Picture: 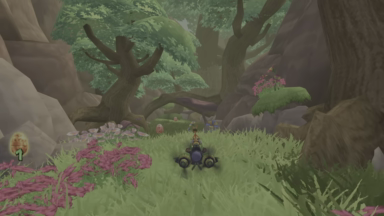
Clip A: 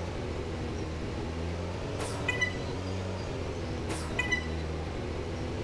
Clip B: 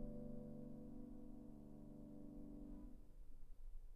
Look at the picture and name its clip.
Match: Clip A